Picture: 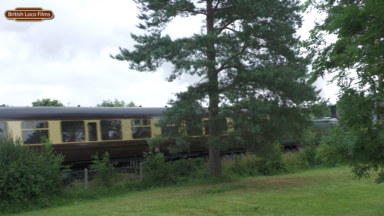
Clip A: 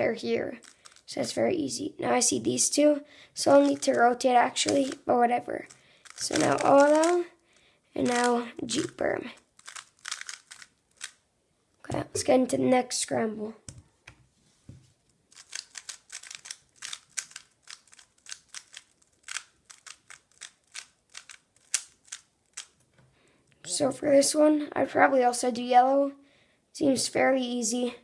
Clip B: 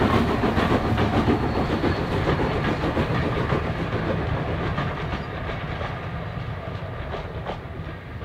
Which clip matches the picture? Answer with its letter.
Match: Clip B